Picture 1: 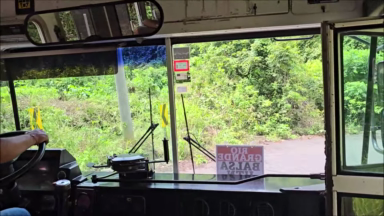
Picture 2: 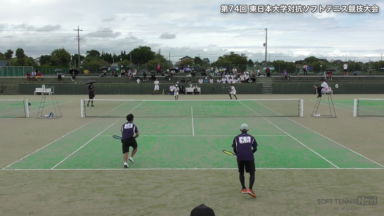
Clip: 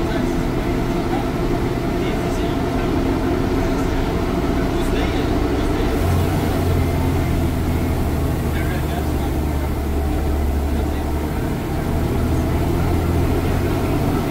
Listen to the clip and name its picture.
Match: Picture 1